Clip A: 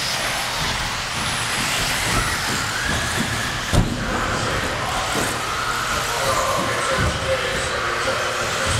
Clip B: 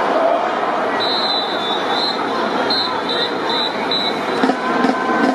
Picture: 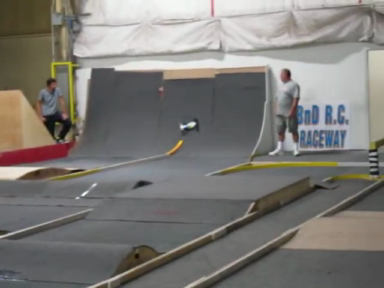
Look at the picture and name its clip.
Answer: A